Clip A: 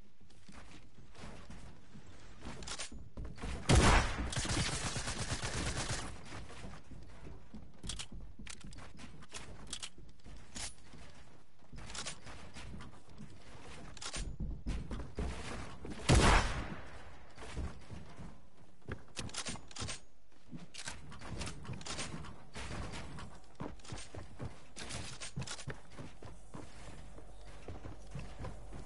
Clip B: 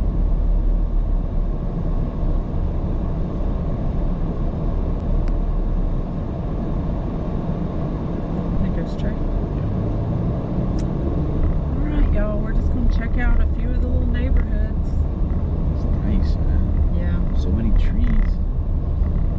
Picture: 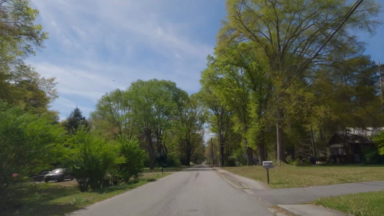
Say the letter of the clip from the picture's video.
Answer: B